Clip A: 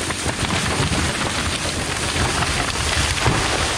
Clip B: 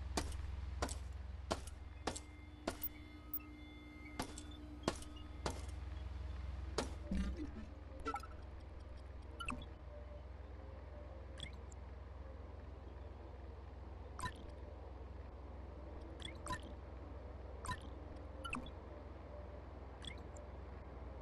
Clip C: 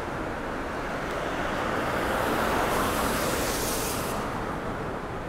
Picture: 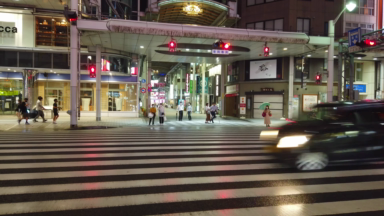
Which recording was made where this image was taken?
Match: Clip C